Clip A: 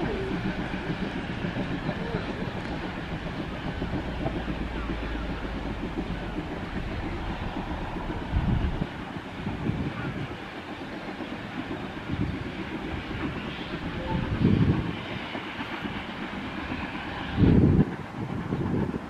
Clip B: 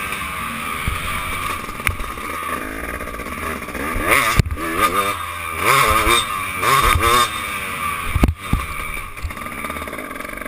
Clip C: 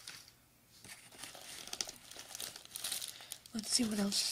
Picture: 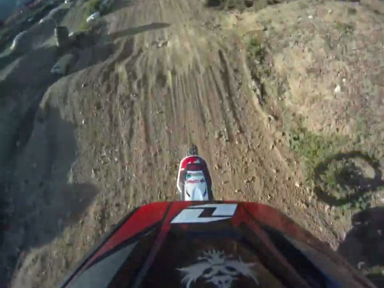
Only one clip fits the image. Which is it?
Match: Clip B